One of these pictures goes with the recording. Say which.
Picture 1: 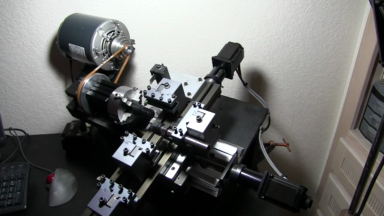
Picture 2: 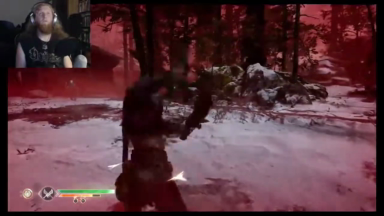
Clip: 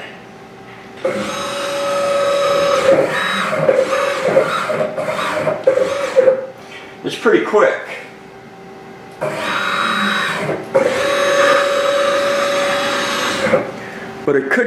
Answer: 1